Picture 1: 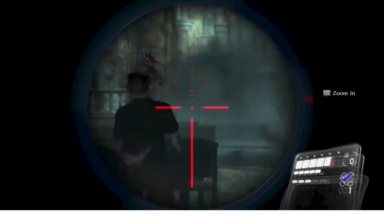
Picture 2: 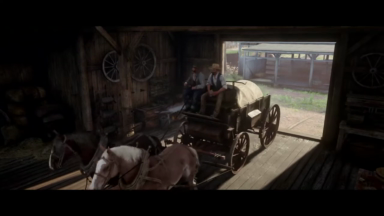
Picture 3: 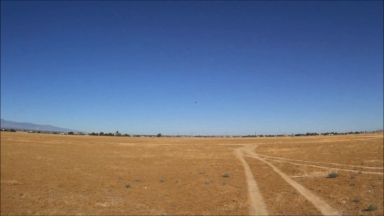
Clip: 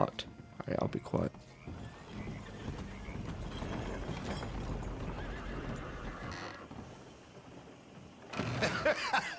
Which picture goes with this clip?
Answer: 2